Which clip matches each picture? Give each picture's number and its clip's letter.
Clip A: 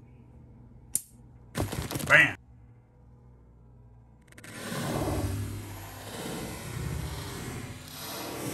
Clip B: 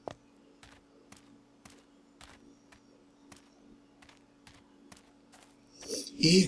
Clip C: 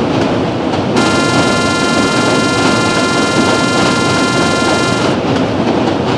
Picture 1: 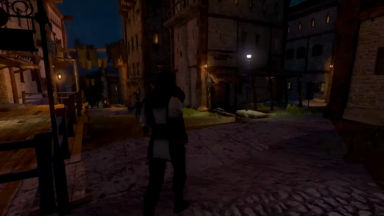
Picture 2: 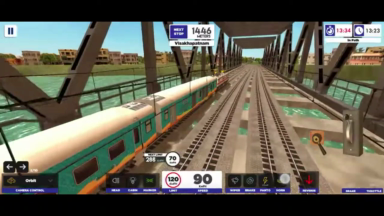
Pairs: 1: B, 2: C